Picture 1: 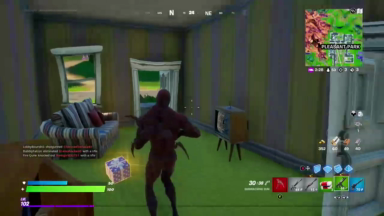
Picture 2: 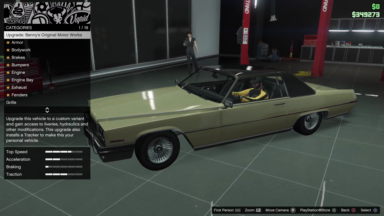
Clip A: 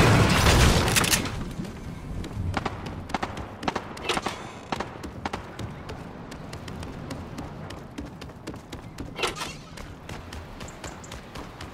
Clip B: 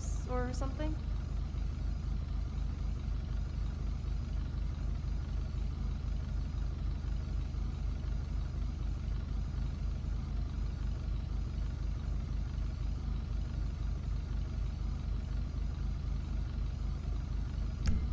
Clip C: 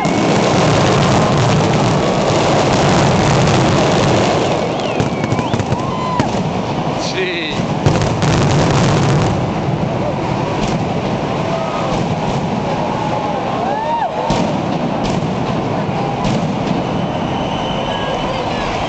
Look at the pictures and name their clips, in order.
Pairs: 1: A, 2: B